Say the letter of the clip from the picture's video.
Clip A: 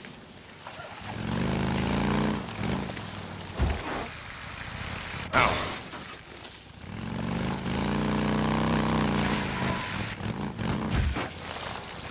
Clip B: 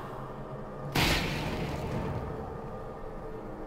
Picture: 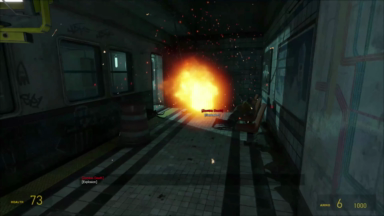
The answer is B